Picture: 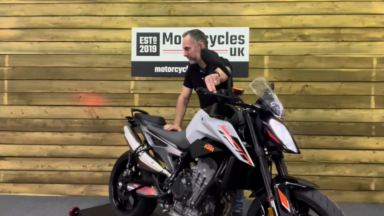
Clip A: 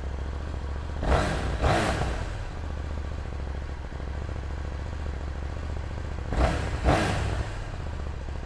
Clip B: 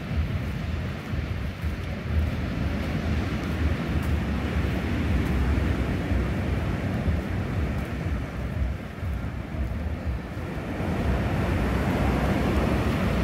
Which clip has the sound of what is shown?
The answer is A